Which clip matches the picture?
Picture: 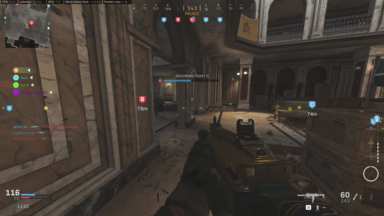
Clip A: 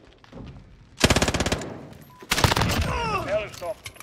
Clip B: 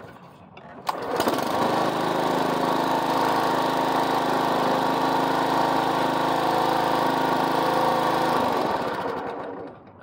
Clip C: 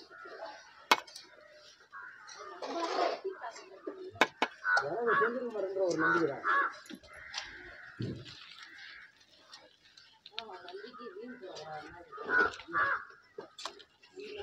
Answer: A